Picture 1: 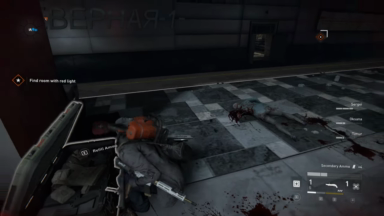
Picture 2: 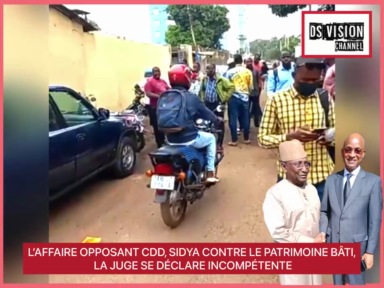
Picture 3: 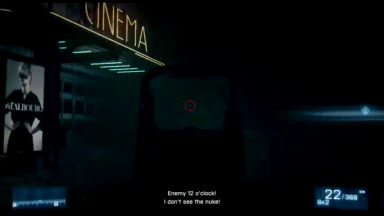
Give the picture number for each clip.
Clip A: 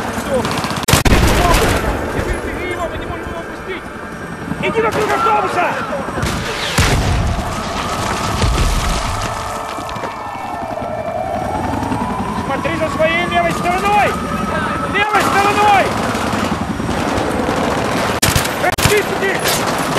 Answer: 3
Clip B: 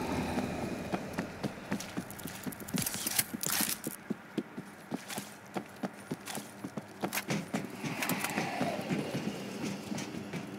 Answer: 1